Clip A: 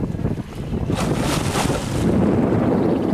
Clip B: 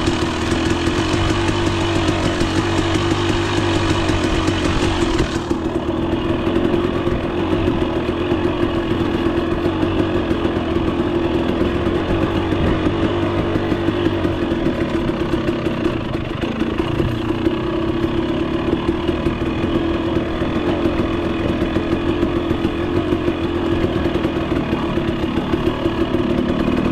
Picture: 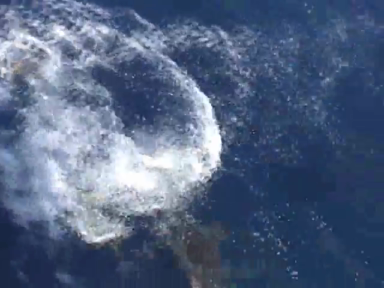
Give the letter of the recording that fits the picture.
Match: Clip A